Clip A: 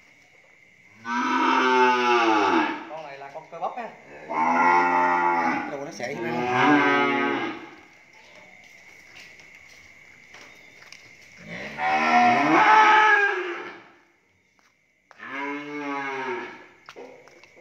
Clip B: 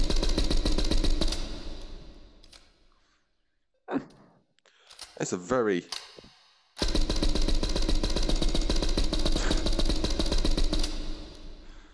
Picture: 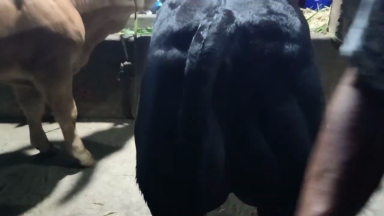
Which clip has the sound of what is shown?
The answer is A